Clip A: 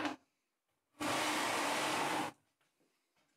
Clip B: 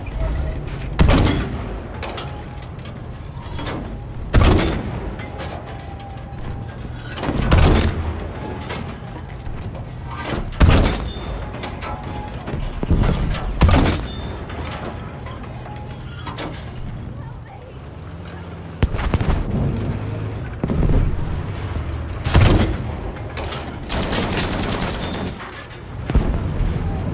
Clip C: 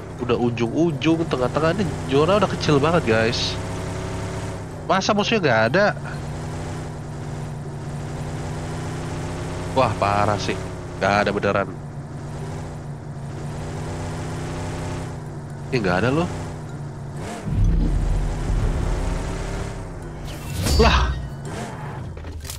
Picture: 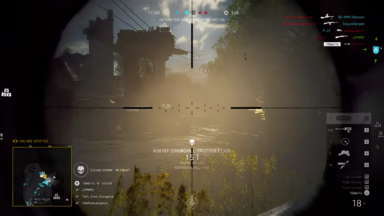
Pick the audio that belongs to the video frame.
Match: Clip B